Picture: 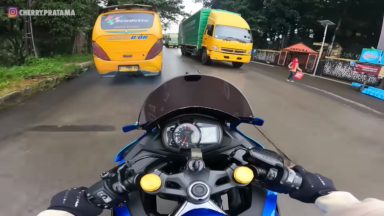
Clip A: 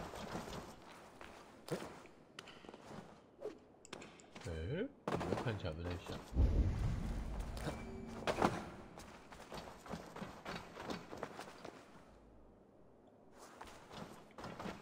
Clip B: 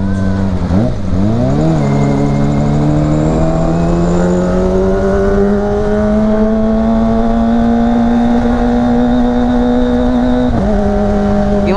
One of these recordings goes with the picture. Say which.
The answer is B